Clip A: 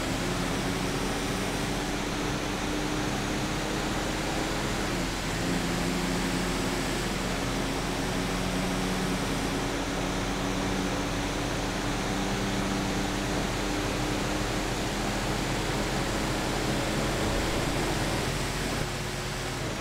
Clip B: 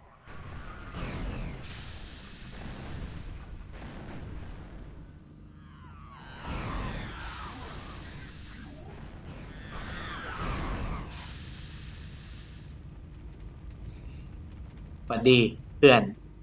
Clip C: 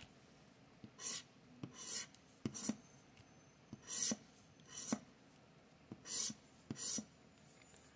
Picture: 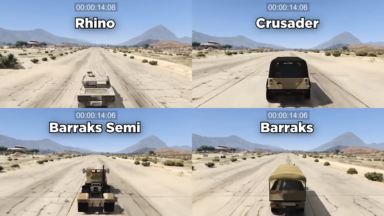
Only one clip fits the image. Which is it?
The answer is A